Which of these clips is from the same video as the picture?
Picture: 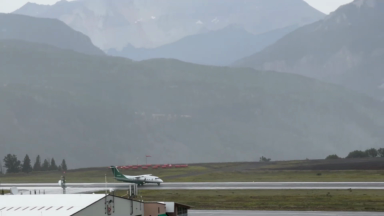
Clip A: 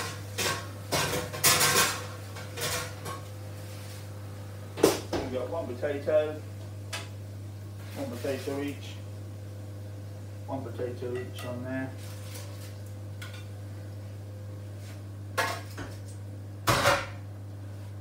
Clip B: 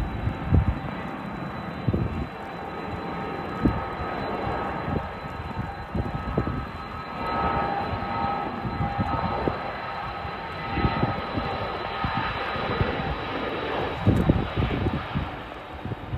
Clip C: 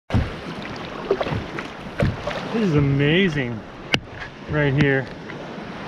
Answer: B